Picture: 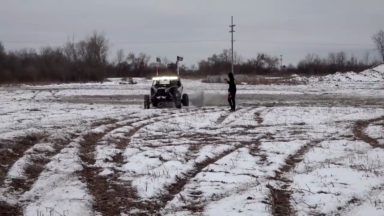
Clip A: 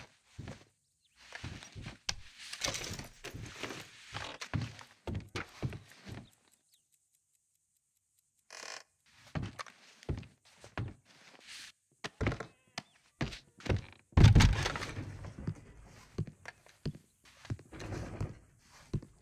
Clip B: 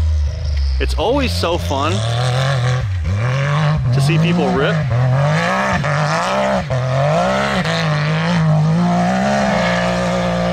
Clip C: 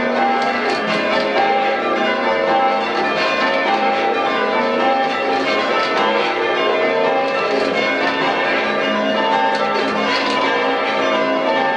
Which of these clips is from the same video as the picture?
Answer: B